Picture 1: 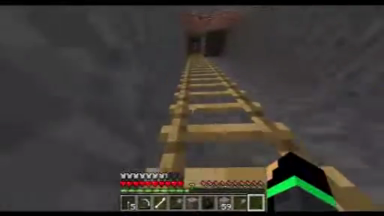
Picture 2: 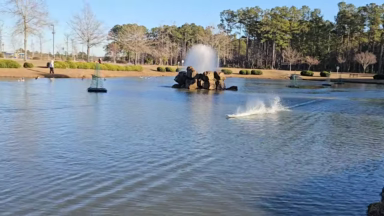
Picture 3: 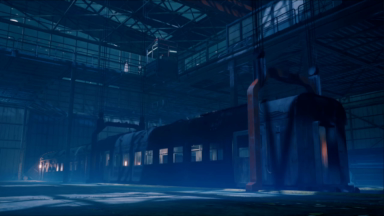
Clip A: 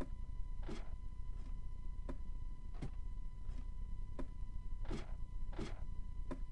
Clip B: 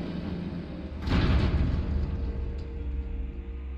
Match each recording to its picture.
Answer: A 1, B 3